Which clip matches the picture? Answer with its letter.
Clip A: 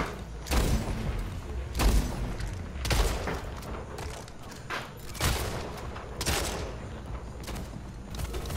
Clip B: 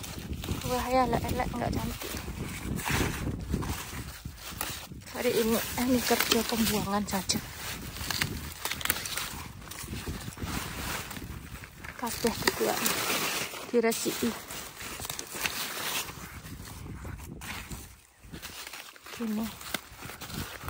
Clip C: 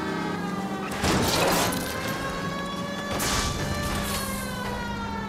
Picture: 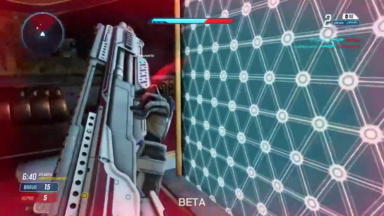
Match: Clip A